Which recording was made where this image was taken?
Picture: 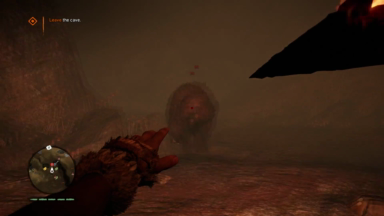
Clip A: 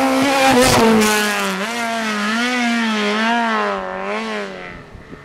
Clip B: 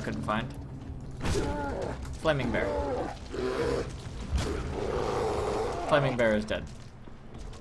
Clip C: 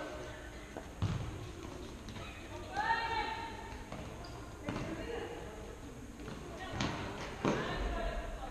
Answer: B